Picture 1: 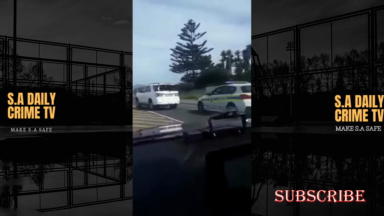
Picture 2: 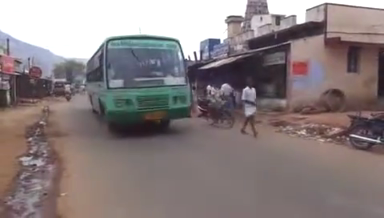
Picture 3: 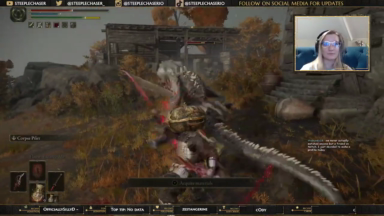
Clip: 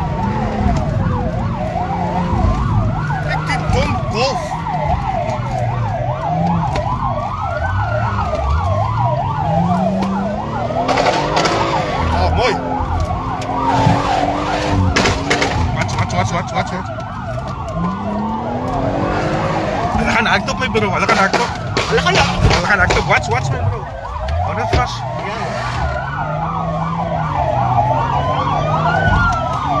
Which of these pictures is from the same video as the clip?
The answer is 1